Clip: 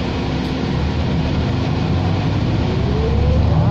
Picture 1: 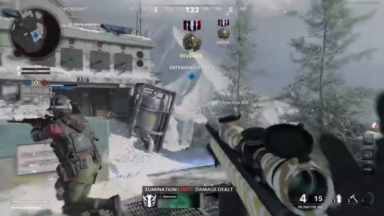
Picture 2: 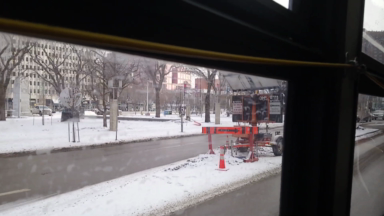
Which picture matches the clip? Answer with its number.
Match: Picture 2